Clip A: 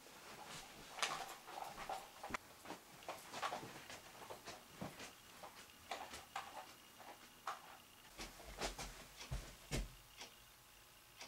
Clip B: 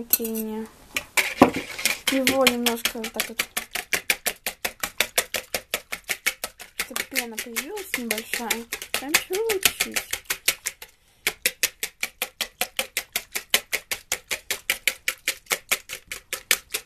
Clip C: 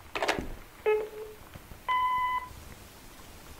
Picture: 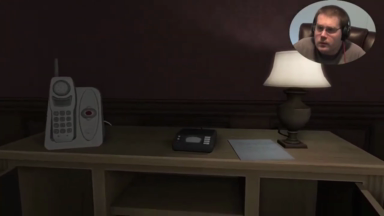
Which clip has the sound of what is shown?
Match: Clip C